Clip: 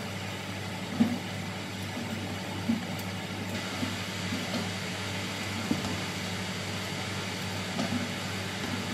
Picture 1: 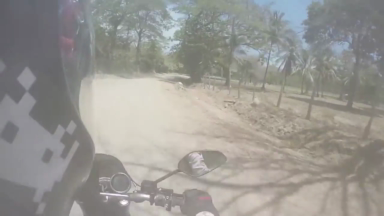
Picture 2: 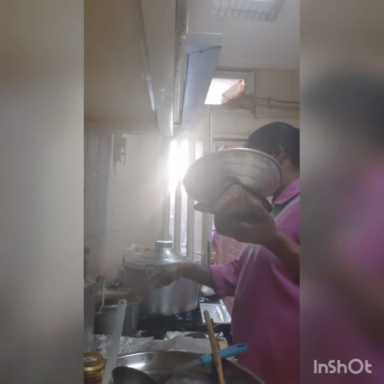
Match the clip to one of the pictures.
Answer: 2